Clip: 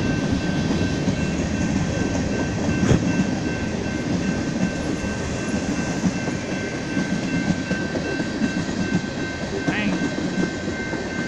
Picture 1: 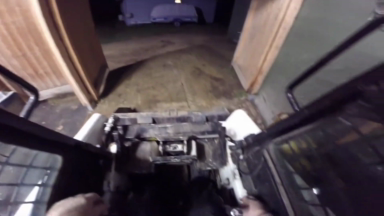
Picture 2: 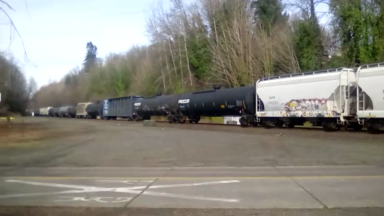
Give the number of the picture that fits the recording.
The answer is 2